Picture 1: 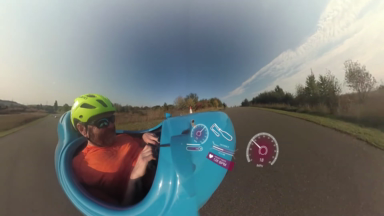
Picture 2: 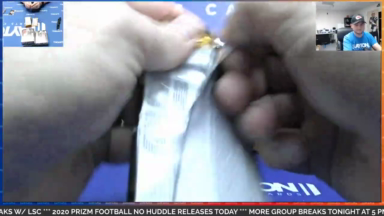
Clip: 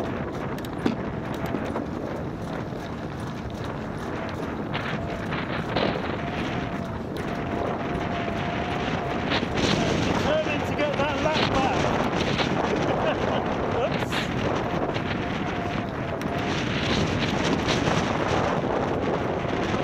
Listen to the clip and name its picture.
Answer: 1